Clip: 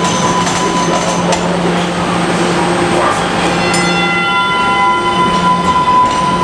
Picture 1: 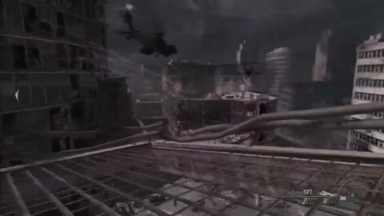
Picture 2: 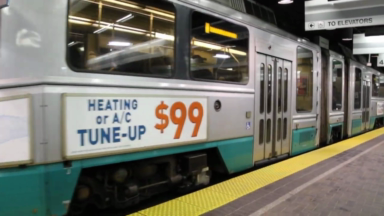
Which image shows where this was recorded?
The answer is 2